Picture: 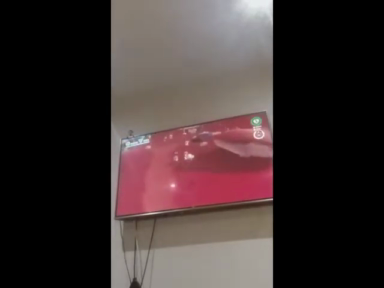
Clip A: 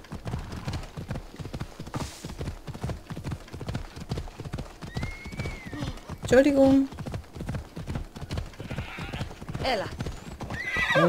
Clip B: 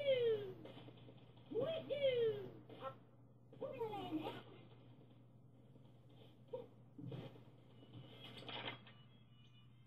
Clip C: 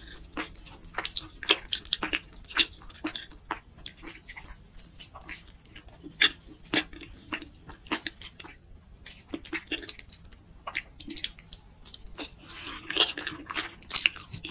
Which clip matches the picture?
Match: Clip B